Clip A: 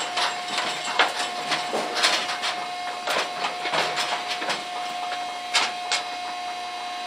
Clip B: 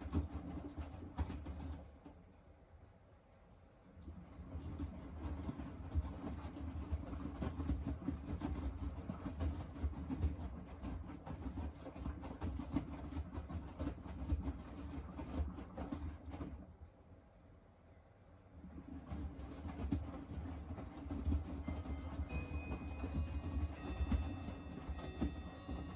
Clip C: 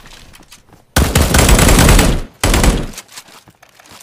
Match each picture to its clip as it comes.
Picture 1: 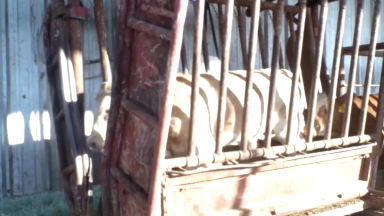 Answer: A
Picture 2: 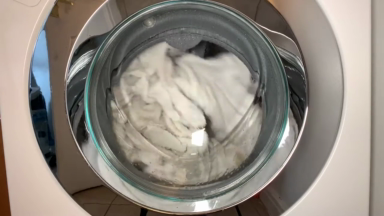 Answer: B